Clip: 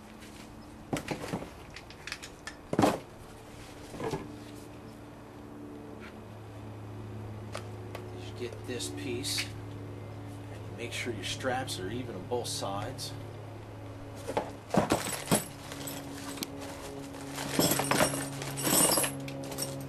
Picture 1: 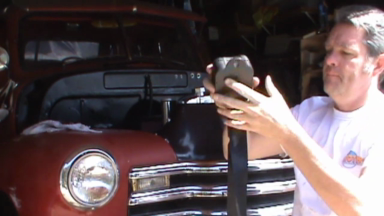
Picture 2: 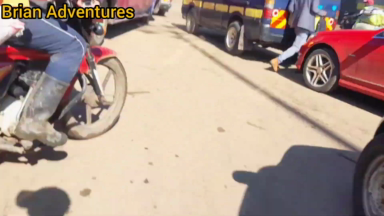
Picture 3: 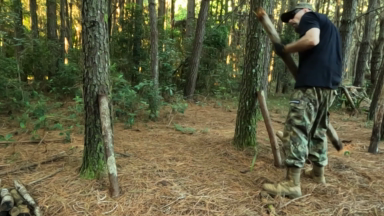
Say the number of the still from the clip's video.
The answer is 1